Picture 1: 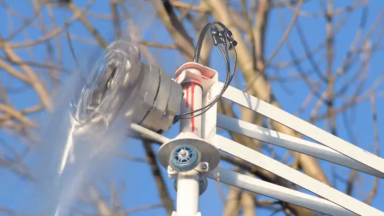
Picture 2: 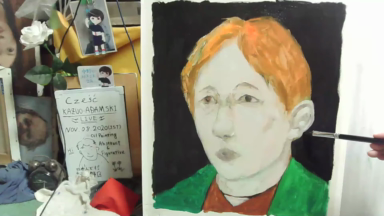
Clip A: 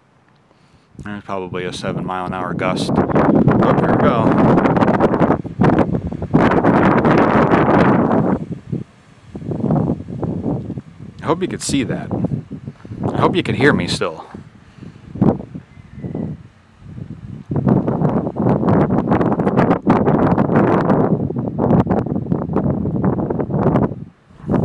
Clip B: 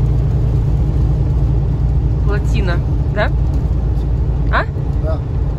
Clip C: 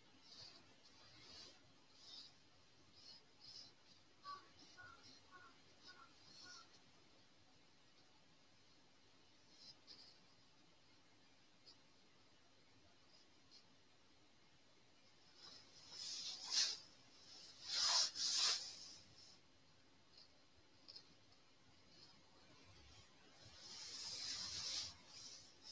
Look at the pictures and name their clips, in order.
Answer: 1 A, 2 C